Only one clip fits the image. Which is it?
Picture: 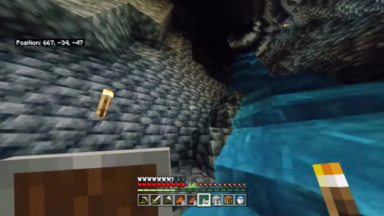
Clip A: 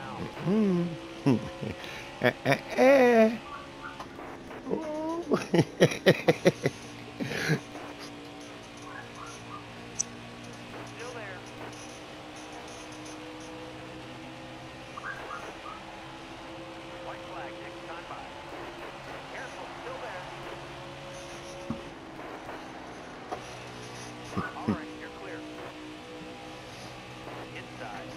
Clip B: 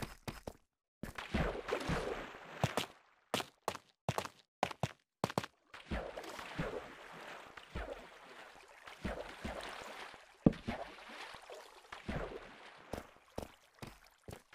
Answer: B